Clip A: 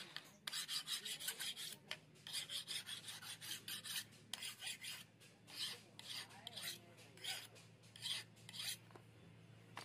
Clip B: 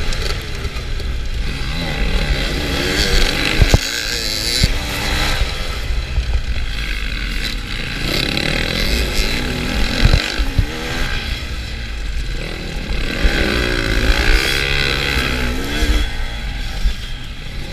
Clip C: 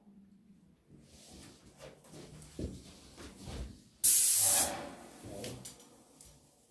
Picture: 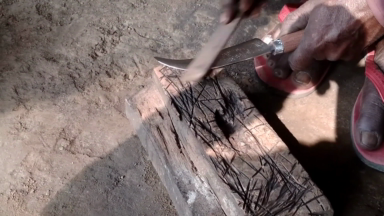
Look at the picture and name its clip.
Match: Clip A